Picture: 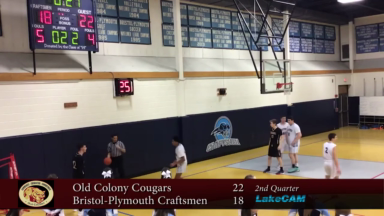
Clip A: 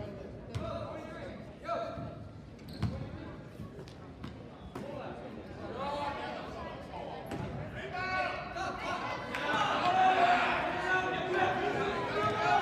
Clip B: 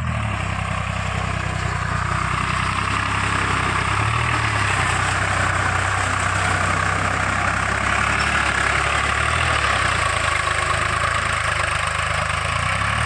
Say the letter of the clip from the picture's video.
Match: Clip A